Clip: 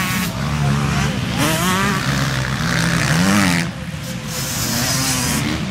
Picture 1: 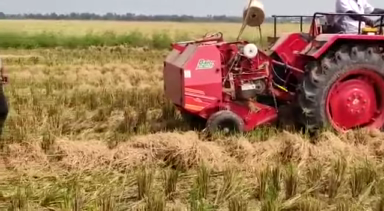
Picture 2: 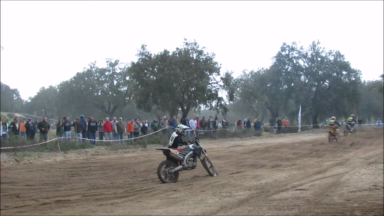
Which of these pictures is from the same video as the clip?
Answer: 2